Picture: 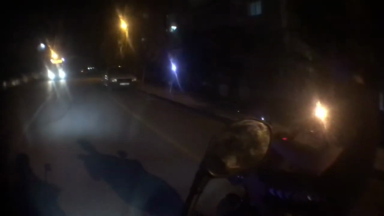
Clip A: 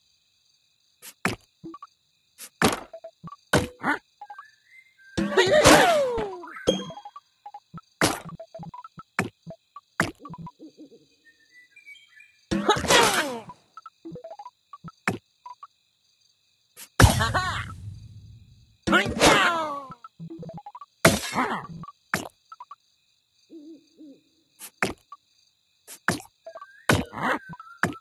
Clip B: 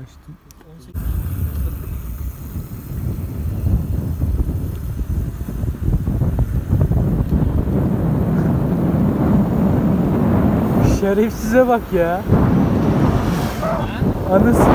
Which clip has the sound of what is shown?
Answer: B